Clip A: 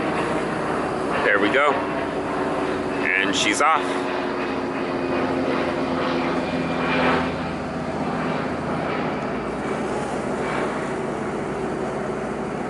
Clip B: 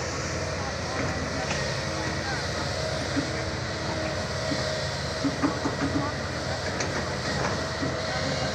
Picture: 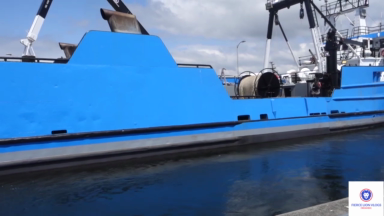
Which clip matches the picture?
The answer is A